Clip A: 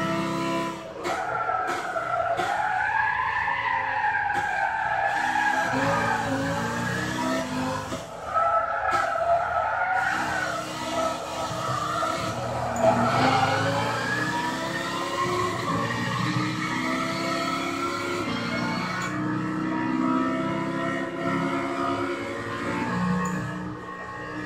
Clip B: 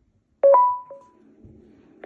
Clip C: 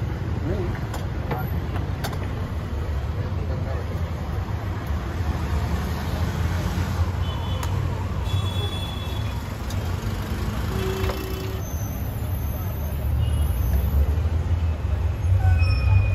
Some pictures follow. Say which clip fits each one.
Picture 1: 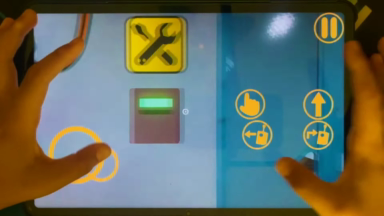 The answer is B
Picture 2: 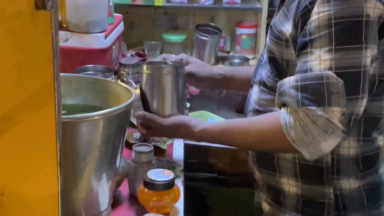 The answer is C